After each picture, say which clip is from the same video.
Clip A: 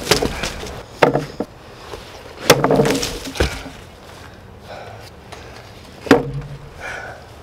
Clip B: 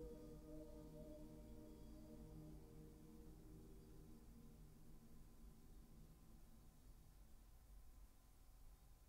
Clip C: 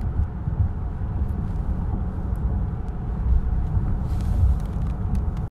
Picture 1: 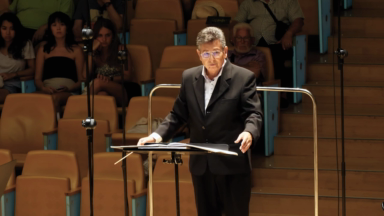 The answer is B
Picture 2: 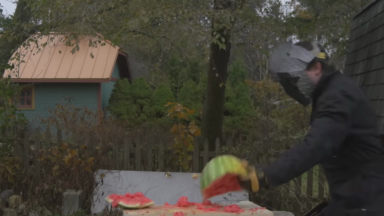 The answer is A